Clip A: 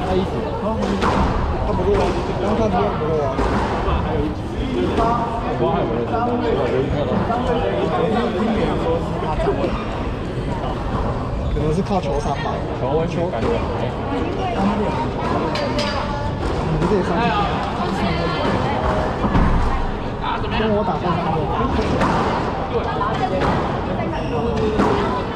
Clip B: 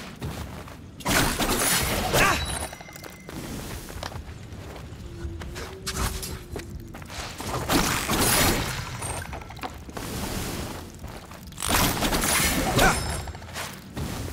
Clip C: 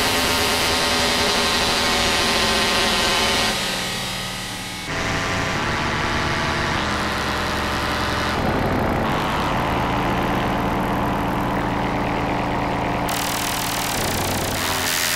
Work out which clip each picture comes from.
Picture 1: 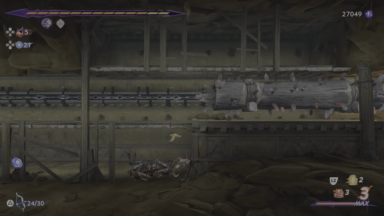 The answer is B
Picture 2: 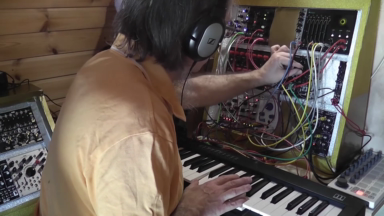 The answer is C